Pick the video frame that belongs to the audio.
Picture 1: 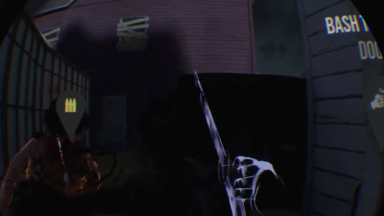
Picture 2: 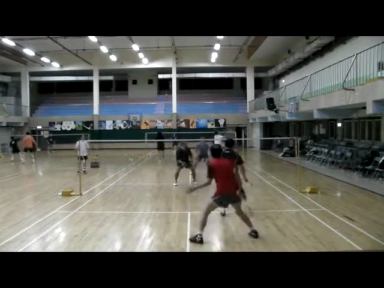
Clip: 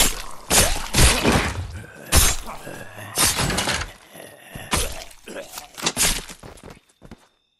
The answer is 1